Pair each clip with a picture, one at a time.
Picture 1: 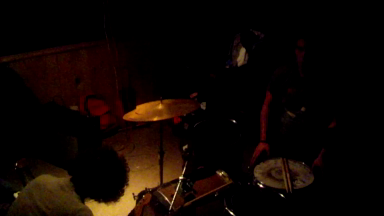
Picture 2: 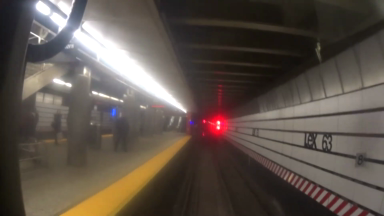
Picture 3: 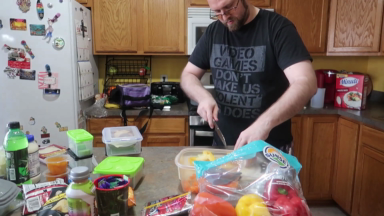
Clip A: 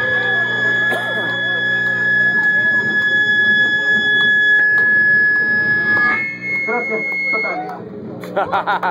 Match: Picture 1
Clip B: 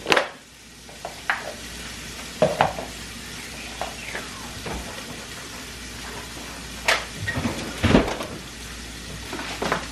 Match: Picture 3